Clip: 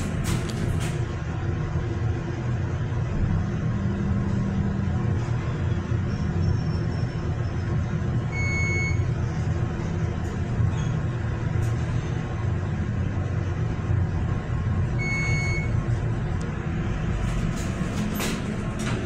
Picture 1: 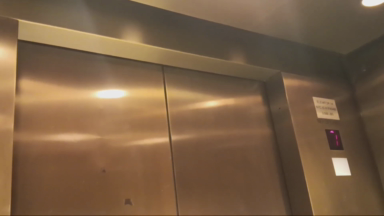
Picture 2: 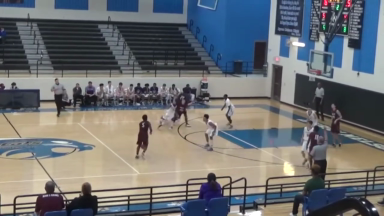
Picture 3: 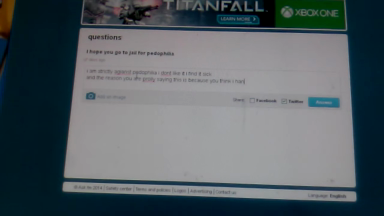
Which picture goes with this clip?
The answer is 1